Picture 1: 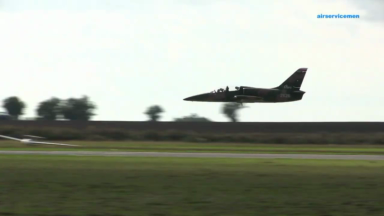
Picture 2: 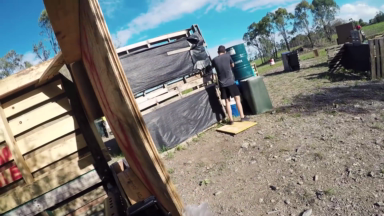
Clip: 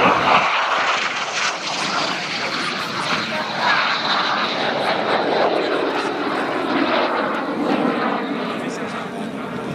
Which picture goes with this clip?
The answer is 1